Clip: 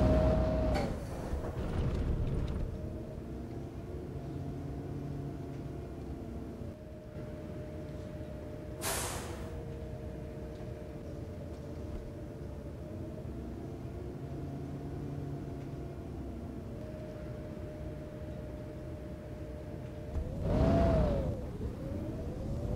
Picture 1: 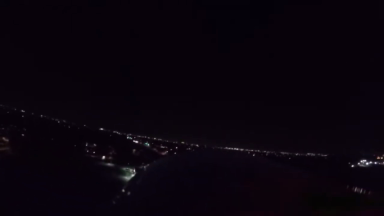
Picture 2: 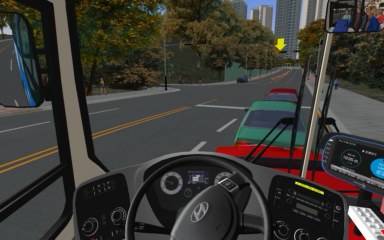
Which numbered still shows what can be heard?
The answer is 2